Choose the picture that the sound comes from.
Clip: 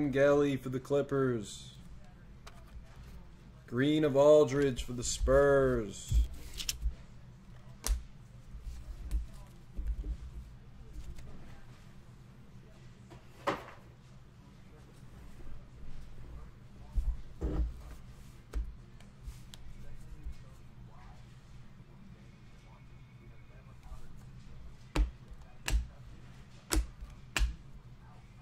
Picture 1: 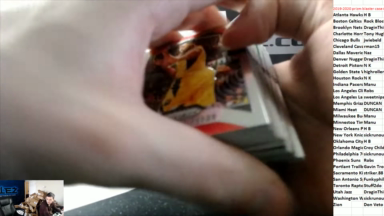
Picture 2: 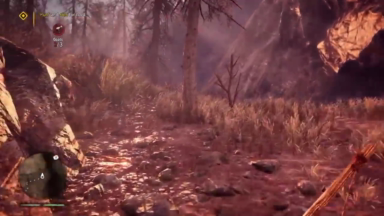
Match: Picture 1